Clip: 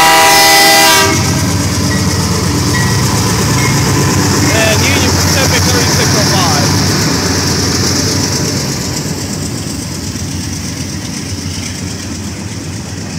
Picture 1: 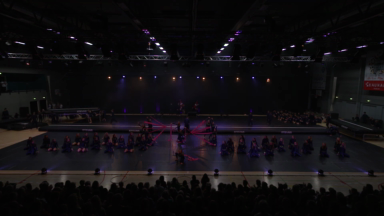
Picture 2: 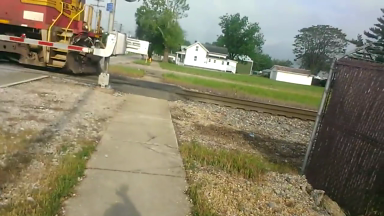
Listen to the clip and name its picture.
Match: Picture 2